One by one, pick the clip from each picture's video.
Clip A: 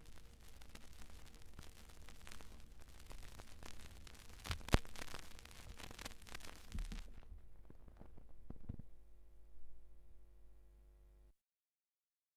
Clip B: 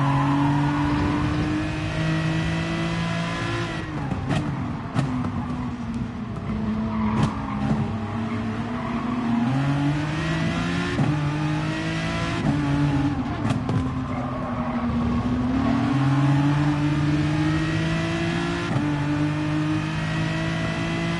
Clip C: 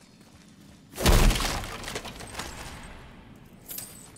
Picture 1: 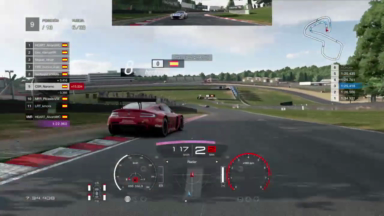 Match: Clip B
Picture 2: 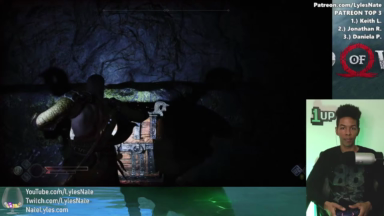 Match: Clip C